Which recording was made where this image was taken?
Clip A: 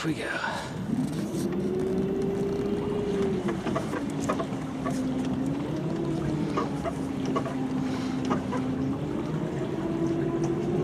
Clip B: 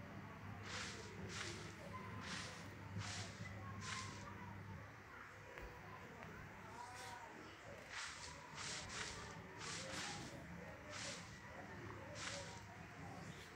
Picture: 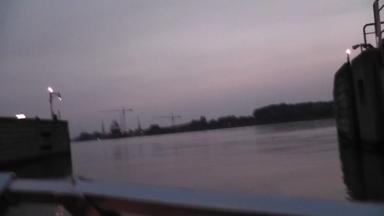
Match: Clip A